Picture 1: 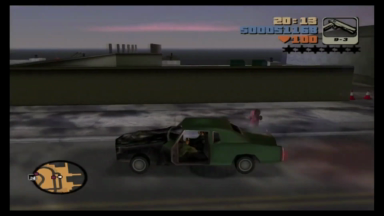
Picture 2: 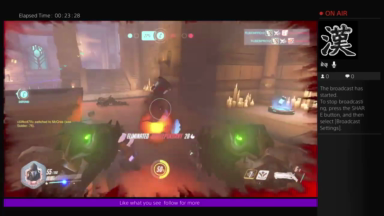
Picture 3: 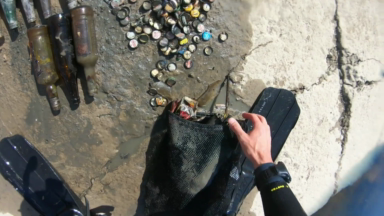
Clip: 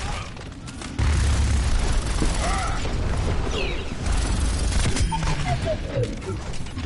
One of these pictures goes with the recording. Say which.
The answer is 2